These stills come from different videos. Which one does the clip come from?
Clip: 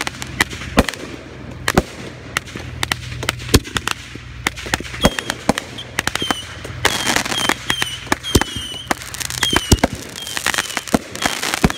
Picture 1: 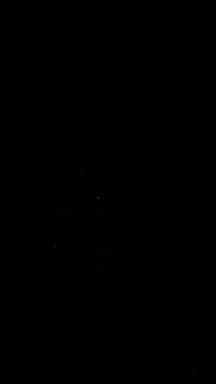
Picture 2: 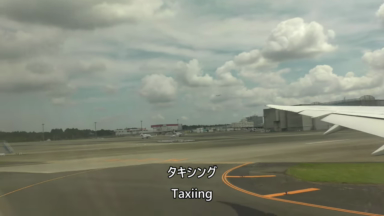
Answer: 1